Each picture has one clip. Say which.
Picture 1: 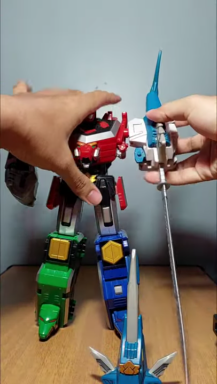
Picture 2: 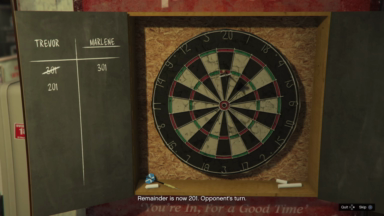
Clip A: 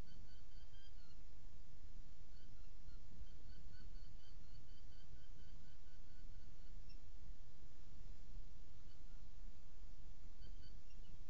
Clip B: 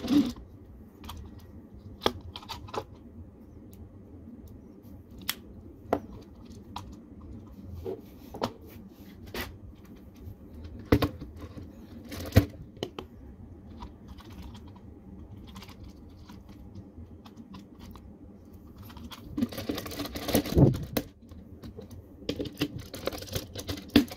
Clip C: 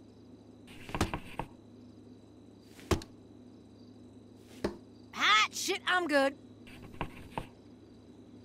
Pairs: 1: B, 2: C